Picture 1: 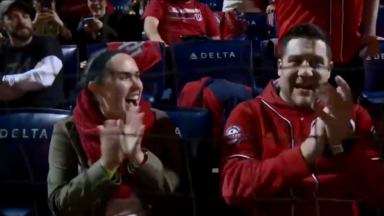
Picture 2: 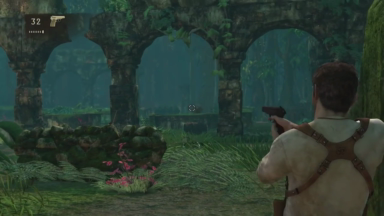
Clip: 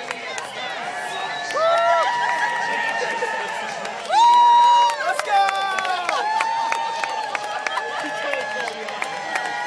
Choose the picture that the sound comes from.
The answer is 1